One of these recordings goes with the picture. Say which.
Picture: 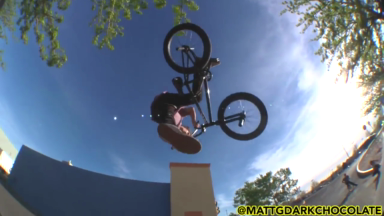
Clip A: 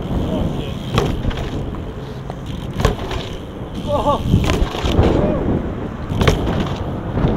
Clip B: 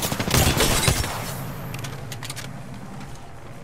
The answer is A